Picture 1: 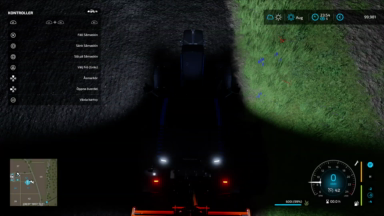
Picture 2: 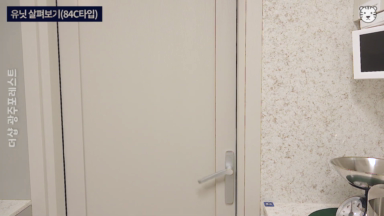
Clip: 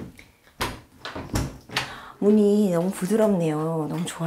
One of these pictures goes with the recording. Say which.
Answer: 2